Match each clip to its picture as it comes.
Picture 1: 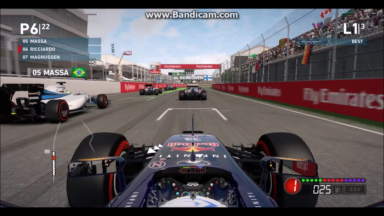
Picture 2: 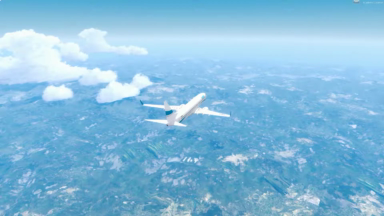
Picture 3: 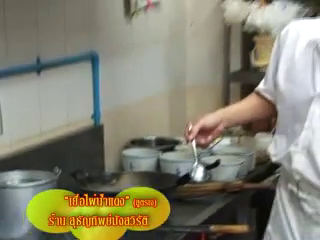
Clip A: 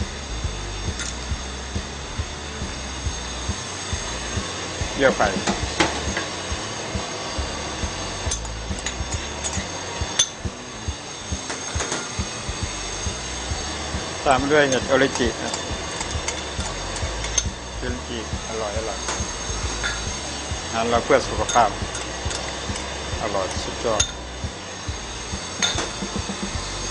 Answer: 3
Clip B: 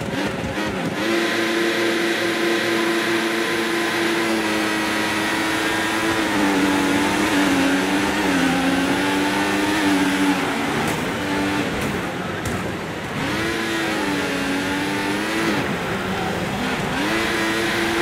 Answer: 1